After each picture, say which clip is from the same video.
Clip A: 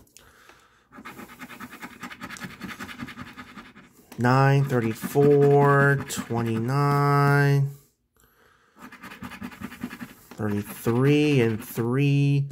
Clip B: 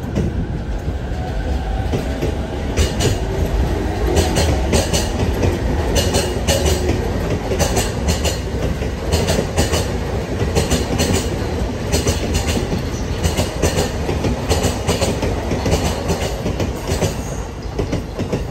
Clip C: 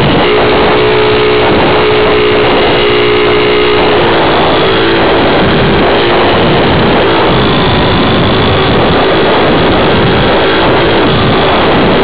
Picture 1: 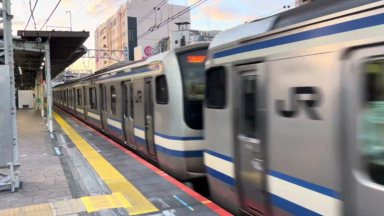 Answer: B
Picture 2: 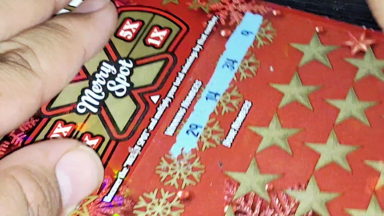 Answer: A